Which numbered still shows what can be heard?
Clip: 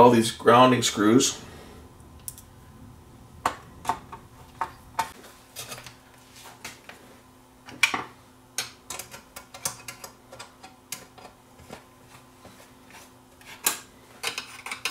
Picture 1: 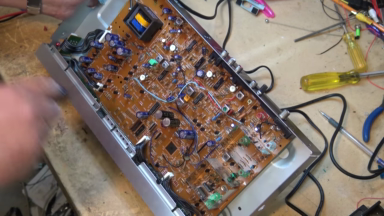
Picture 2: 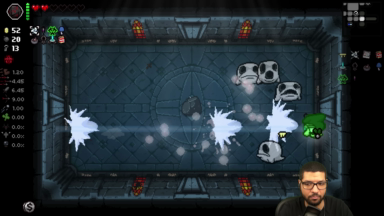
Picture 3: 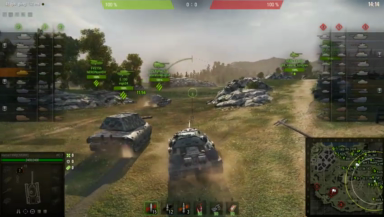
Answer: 1